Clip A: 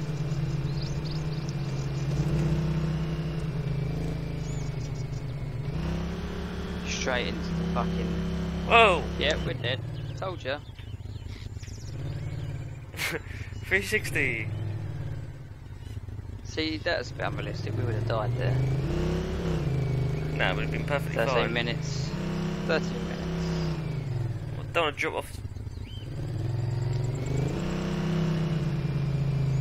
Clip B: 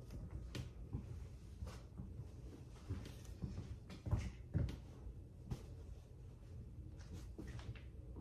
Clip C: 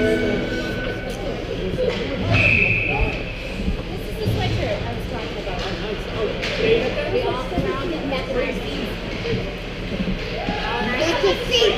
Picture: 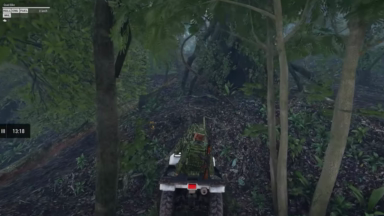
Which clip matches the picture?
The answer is A